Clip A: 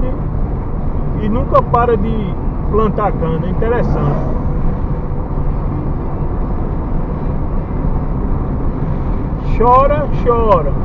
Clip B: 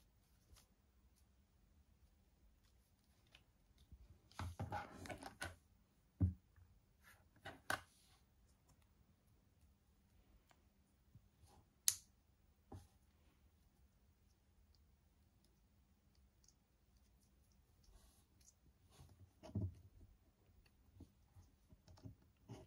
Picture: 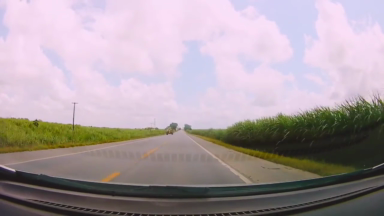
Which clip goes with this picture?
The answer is A